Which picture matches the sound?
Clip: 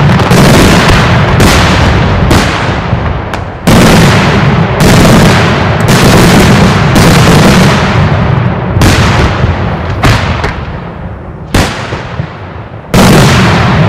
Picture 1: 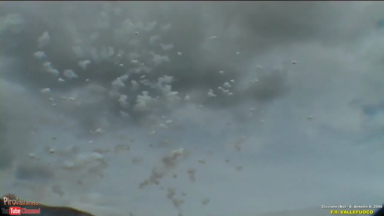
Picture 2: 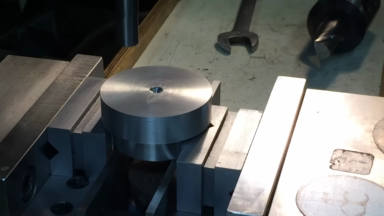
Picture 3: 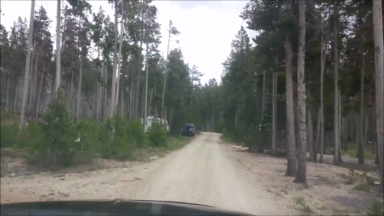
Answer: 1